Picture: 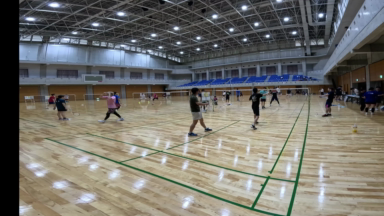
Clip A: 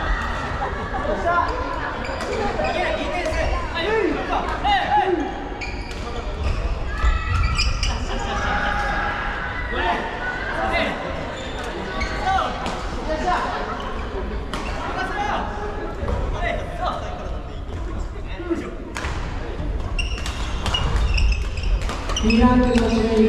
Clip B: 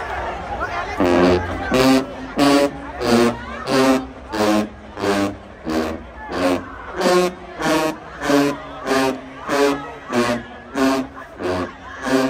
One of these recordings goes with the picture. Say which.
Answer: A